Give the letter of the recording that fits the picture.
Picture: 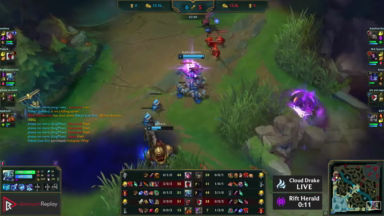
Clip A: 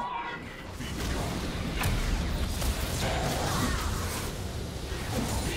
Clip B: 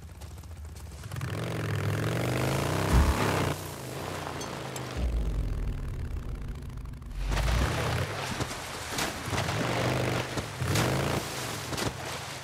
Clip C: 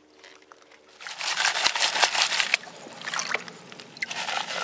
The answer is A